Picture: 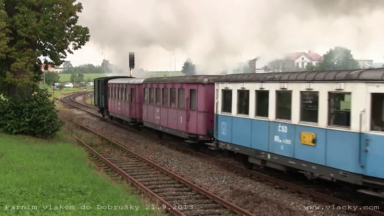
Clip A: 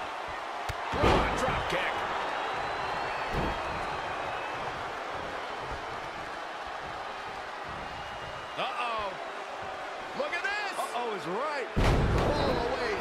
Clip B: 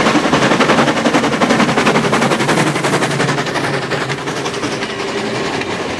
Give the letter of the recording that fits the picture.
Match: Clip B